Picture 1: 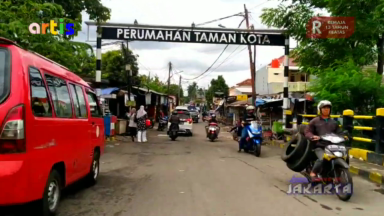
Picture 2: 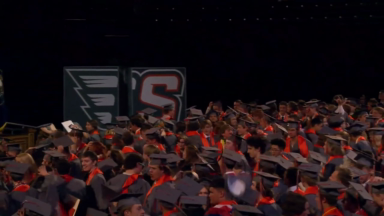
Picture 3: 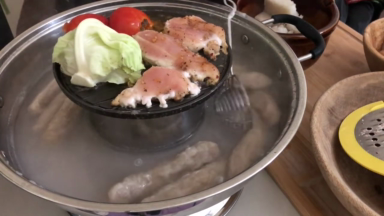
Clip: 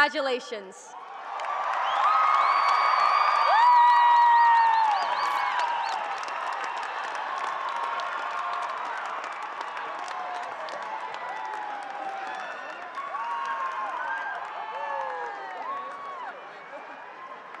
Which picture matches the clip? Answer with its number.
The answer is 2